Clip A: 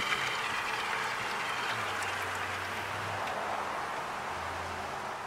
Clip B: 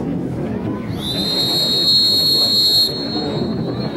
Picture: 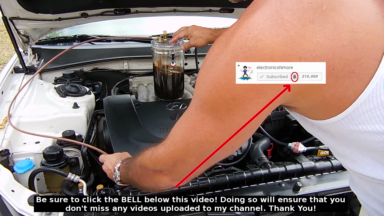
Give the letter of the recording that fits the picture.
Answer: A